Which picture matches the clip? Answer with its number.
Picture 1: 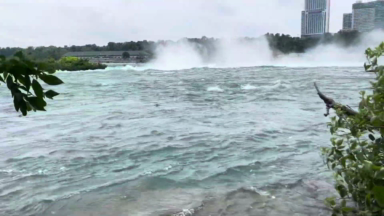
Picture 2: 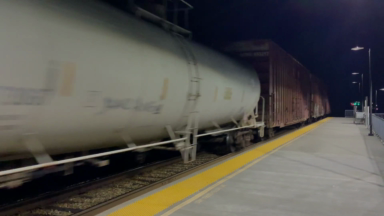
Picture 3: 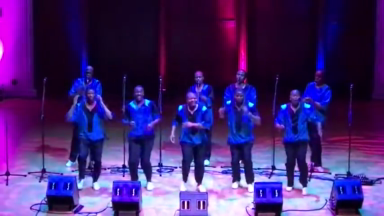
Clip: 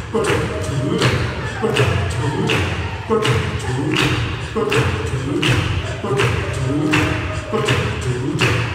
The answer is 3